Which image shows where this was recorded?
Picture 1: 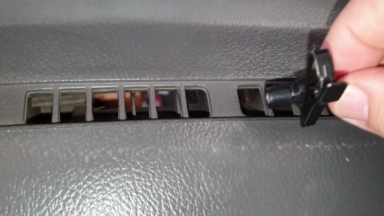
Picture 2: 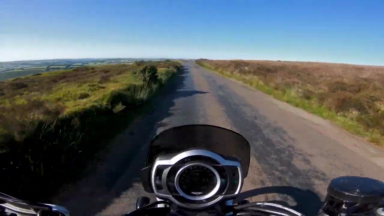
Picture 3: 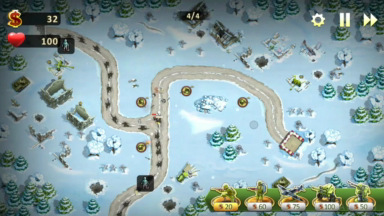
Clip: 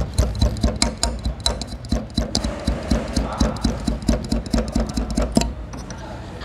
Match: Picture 1